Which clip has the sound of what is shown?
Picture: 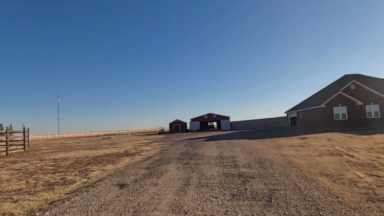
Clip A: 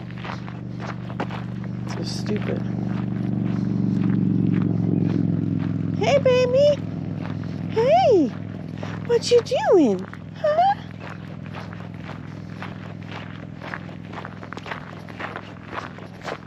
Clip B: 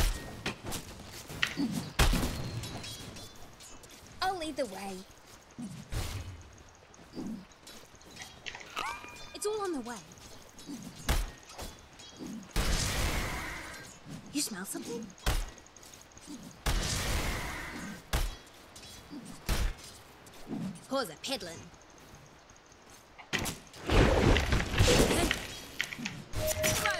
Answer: A